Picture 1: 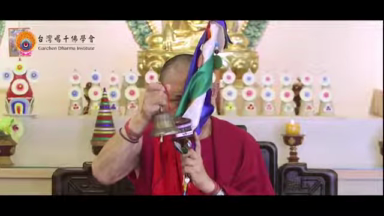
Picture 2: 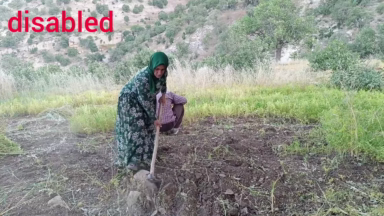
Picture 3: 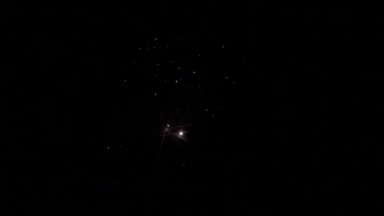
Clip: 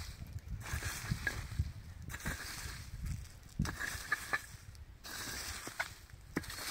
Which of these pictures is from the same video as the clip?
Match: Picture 2